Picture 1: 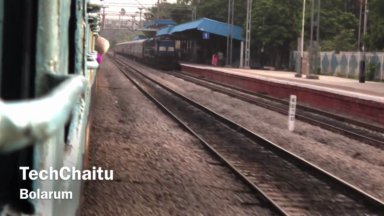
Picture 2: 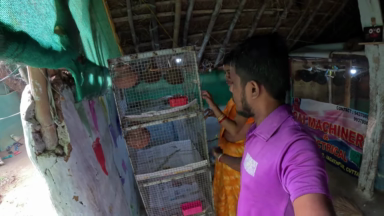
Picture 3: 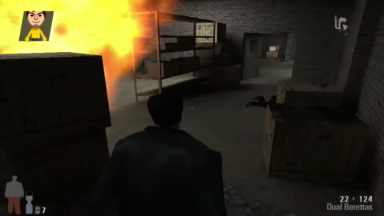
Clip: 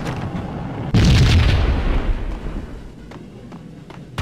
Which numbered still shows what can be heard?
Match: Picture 3